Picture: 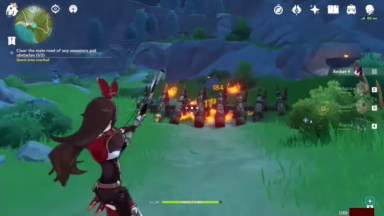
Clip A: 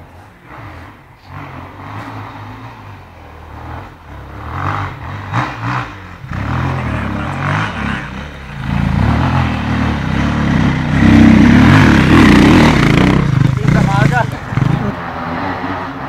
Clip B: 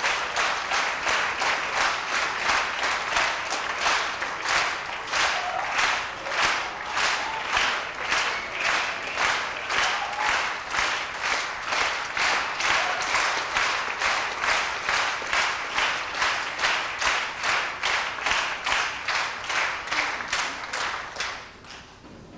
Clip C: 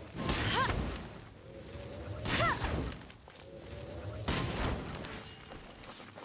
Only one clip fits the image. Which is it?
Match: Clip C